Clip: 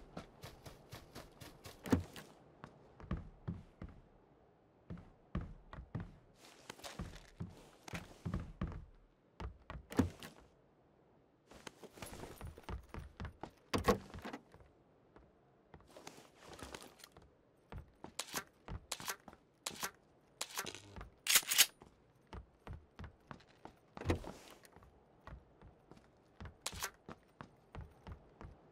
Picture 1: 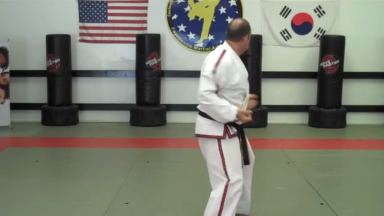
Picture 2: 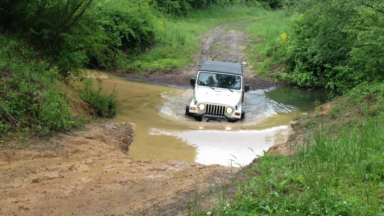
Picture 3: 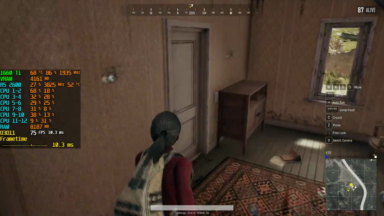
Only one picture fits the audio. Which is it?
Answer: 3